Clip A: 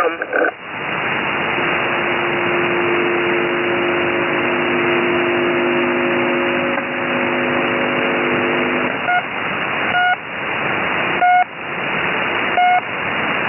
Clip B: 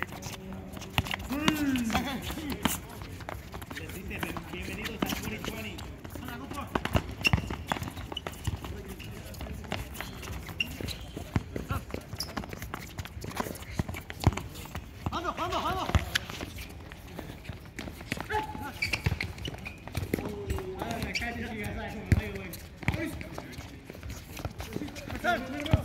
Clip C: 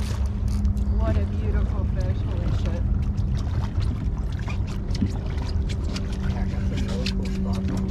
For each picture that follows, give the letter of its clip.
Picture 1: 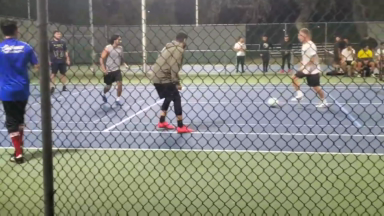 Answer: B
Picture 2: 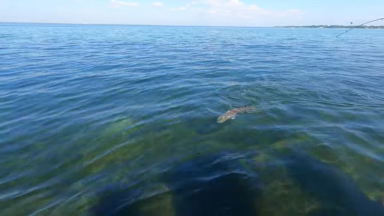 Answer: C